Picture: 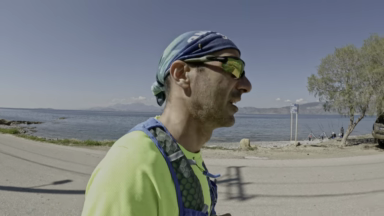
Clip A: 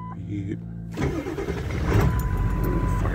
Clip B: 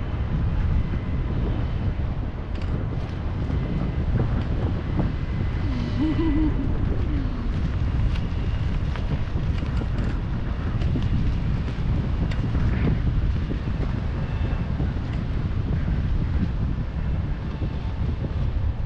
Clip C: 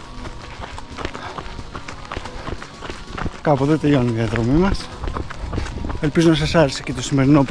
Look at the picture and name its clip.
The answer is C